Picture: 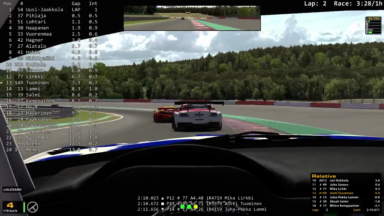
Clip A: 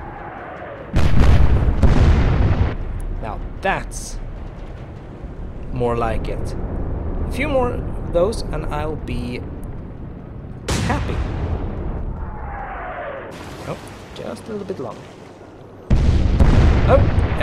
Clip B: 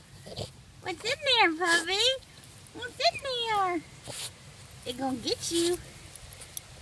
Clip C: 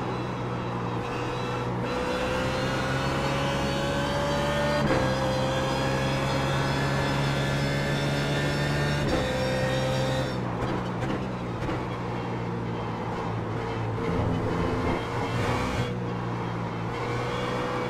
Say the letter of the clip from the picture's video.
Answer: C